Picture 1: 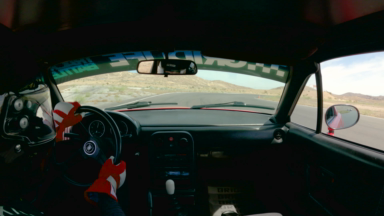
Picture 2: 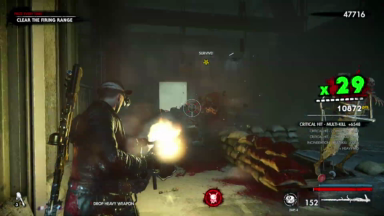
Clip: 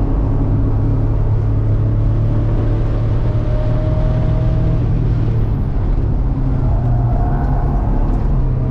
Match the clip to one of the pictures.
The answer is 1